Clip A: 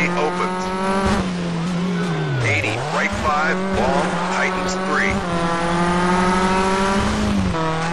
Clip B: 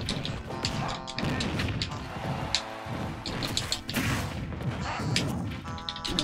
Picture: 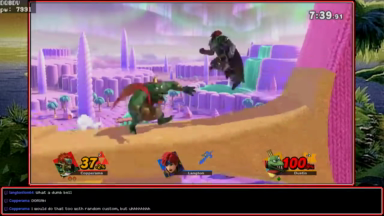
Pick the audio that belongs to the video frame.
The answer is B